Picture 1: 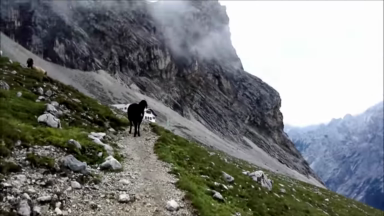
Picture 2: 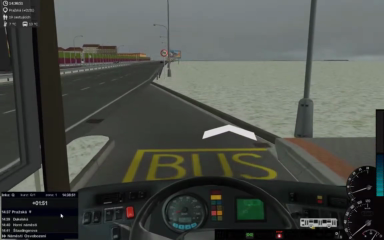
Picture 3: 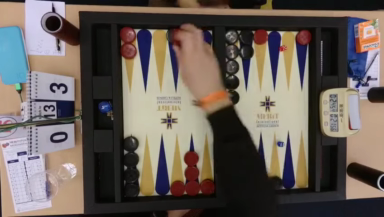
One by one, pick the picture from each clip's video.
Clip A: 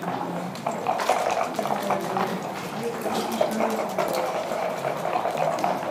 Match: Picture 3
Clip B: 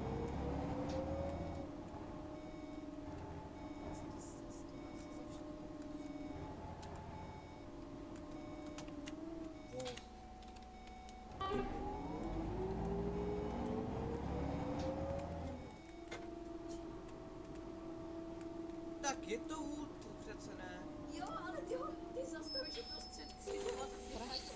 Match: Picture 2